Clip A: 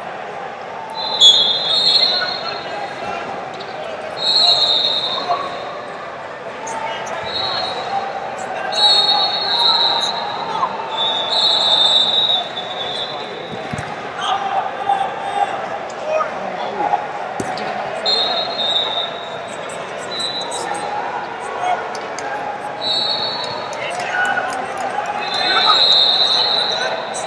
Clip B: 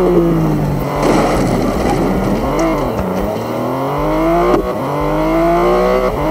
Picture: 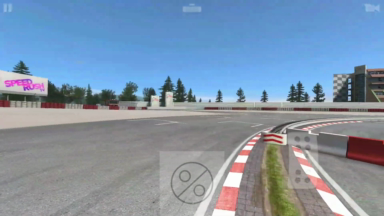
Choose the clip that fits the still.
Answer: B